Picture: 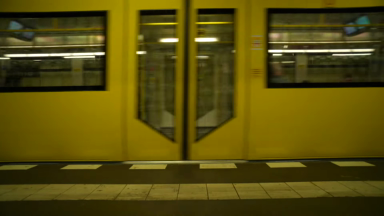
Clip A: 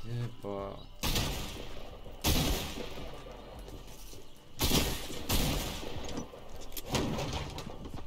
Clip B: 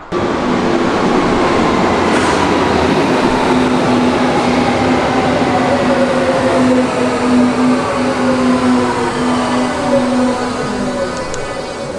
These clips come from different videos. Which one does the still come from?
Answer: B